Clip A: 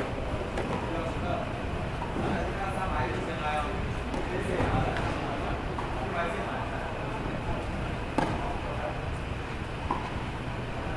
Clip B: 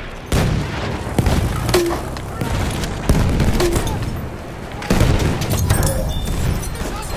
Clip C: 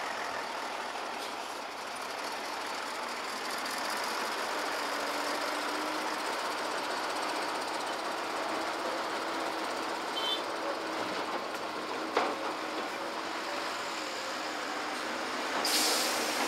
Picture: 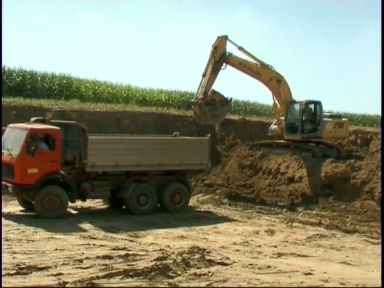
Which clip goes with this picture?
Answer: C